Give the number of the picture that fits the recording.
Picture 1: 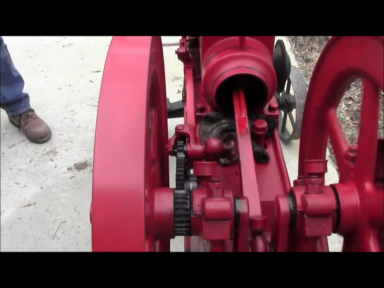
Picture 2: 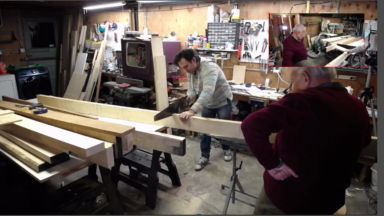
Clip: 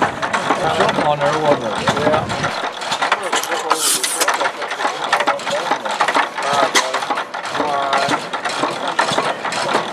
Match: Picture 1